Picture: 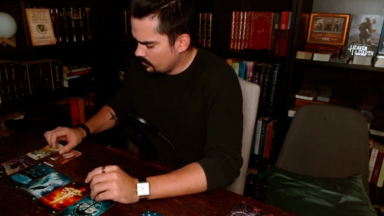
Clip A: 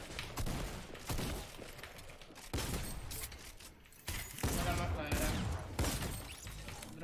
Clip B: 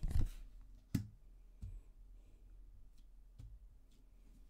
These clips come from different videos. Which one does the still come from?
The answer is B